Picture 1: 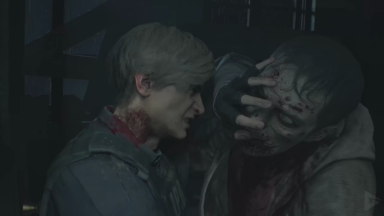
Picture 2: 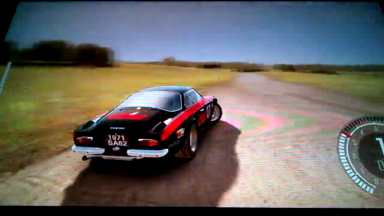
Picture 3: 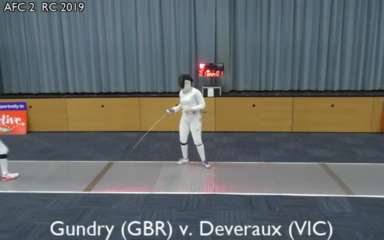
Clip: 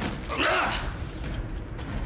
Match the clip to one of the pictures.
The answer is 1